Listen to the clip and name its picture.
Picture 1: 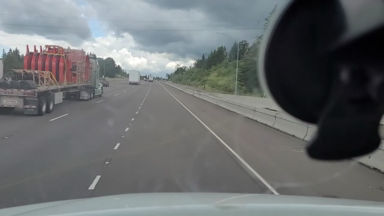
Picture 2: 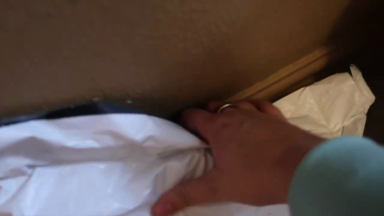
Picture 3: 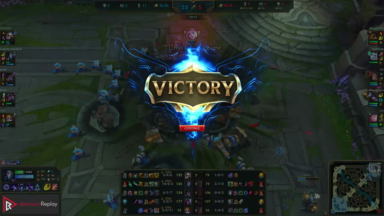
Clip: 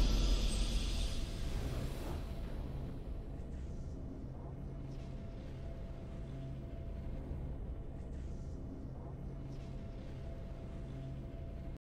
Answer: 3